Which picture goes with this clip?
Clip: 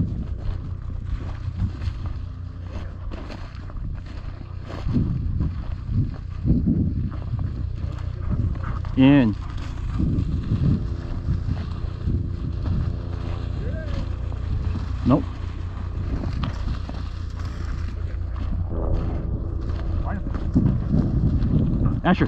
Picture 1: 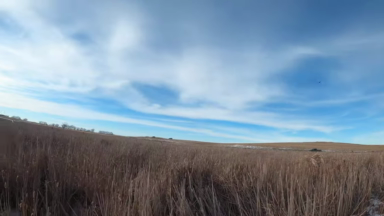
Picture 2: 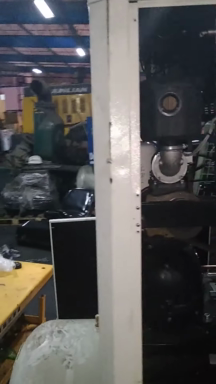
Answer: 1